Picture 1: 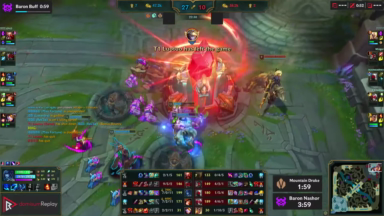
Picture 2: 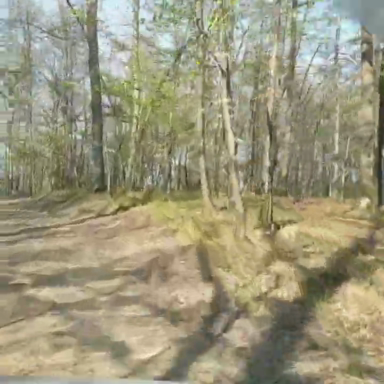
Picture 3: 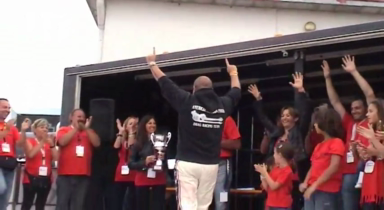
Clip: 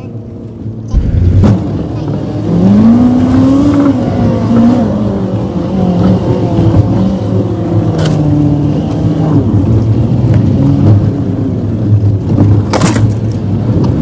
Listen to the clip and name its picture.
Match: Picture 2